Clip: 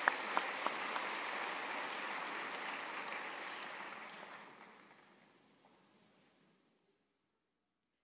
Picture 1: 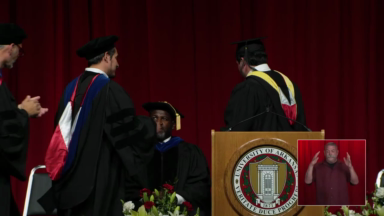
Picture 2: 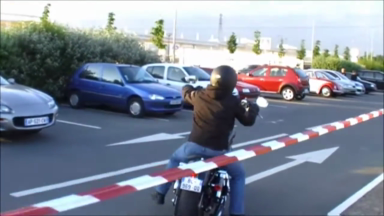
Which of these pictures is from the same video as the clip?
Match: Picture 1